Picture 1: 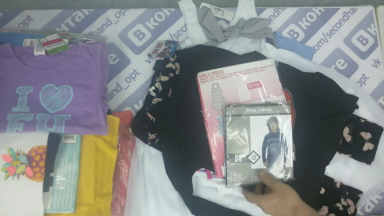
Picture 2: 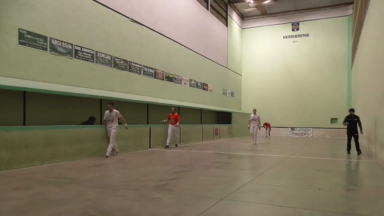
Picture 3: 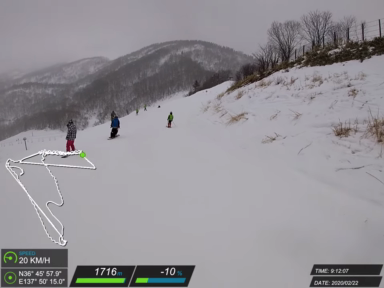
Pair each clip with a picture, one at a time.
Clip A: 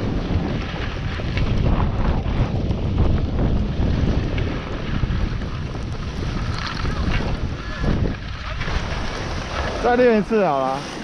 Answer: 3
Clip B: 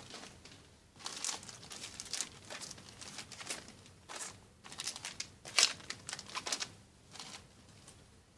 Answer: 1